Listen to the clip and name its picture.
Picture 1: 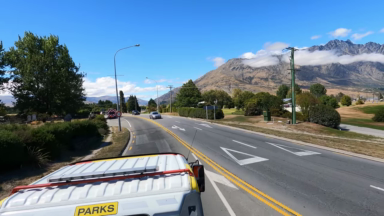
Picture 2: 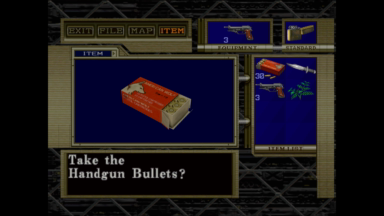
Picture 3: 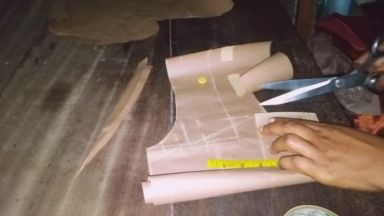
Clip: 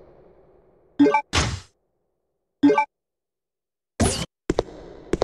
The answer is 2